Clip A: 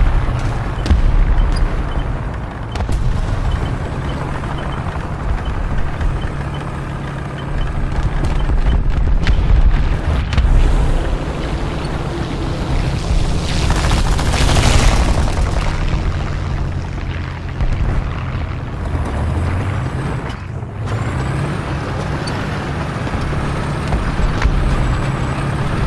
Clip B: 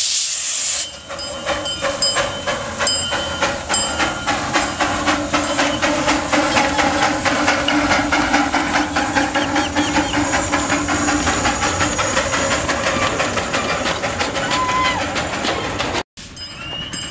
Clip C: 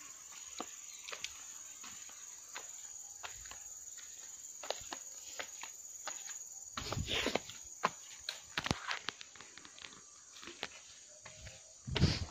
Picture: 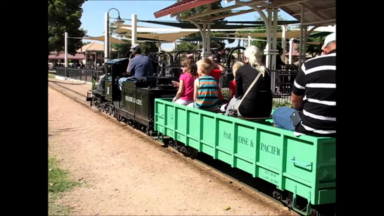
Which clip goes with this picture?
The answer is B